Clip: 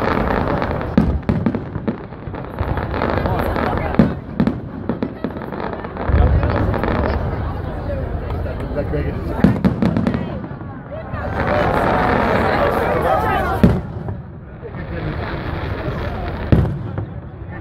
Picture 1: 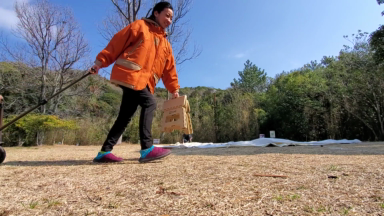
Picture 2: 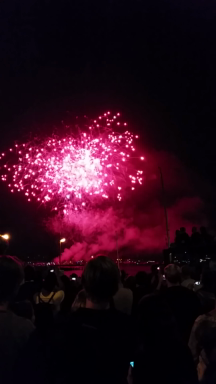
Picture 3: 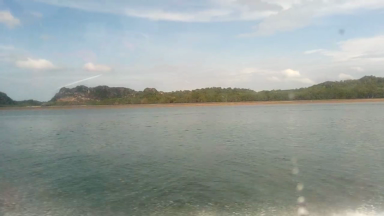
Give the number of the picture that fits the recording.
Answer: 2